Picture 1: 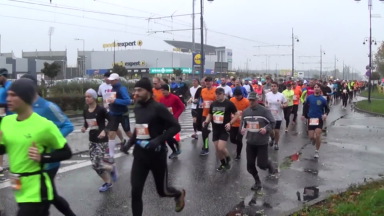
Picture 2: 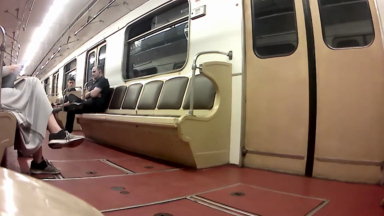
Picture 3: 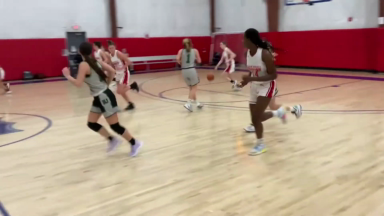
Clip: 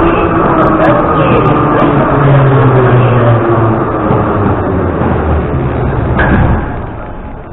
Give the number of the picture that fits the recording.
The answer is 2